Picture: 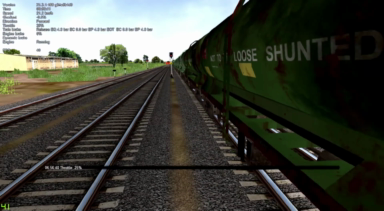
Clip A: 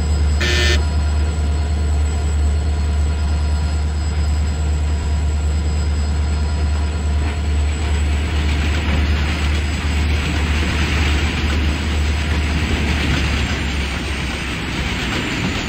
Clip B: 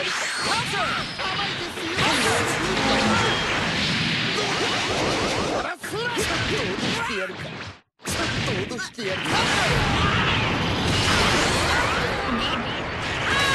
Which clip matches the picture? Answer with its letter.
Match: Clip A